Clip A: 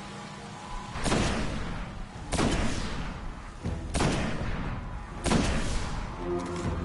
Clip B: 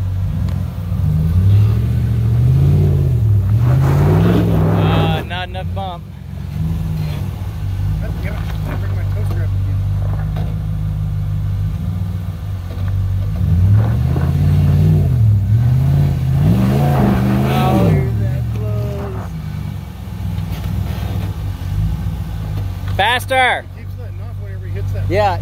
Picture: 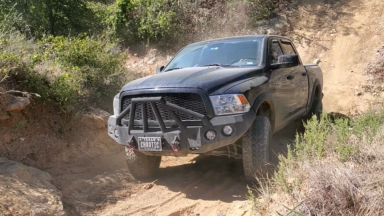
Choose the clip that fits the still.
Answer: B